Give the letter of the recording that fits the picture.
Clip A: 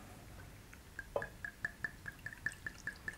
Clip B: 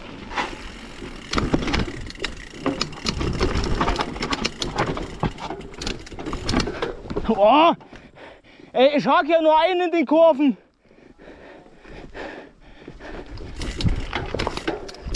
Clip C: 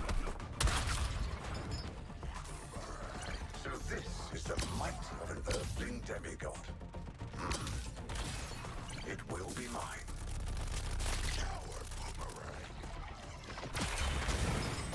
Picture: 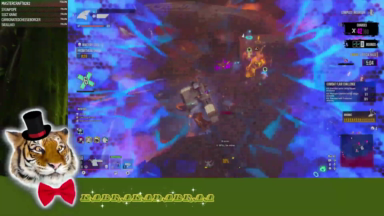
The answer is C